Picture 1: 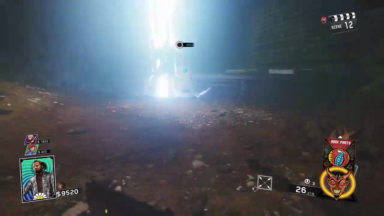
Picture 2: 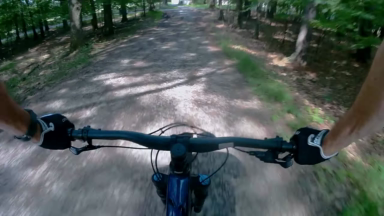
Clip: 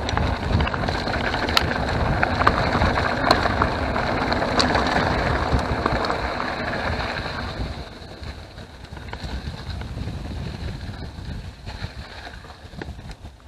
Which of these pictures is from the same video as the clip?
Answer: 2